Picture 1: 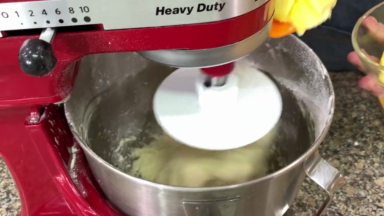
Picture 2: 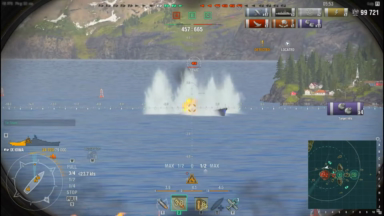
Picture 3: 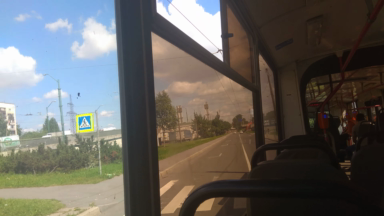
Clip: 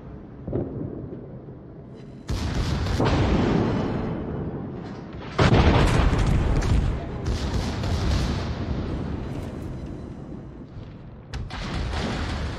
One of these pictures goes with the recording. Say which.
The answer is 2